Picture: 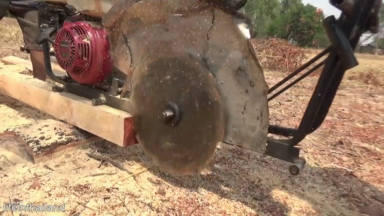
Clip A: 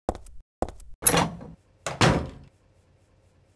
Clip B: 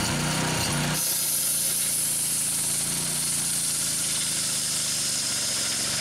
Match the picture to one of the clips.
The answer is B